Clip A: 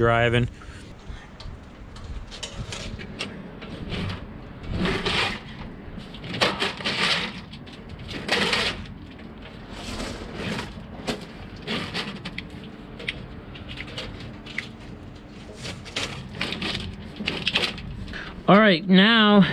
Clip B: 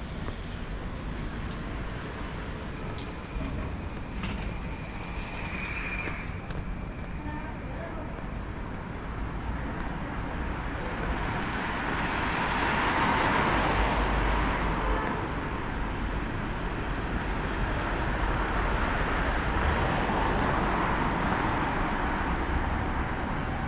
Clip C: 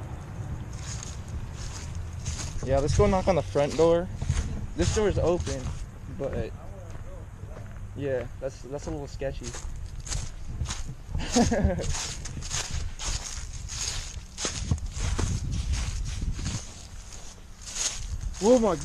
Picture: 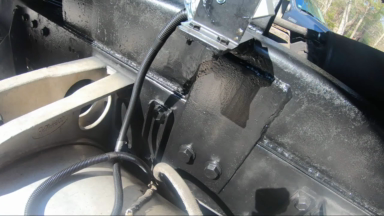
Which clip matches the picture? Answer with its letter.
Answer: A